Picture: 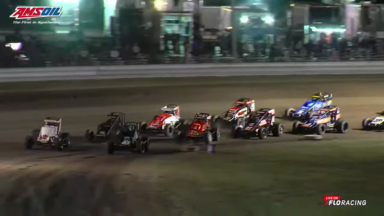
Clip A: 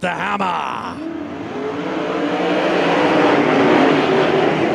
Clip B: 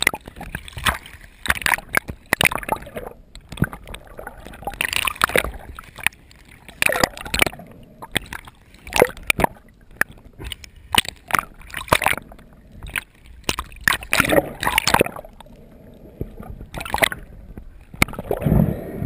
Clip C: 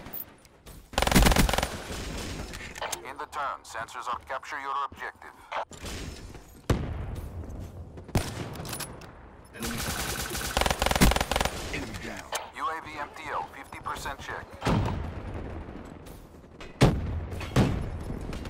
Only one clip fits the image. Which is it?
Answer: A